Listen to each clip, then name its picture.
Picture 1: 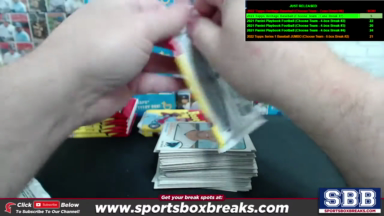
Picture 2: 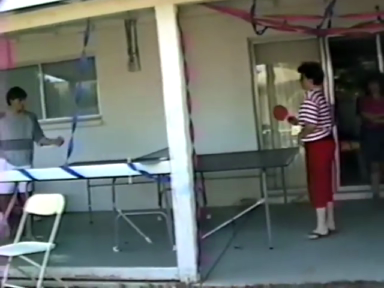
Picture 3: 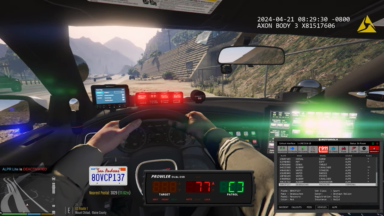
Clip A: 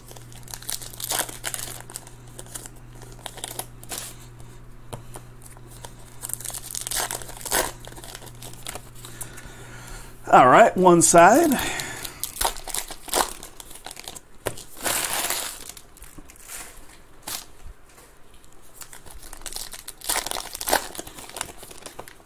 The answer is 1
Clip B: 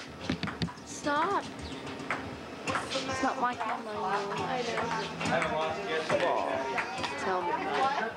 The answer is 2